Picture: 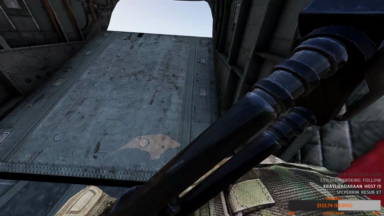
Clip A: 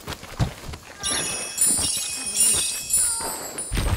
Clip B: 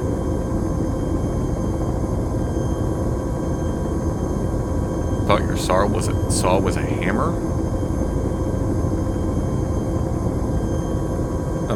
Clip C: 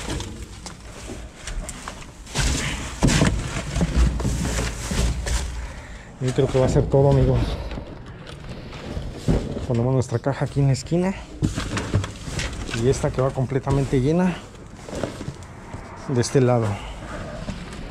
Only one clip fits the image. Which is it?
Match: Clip B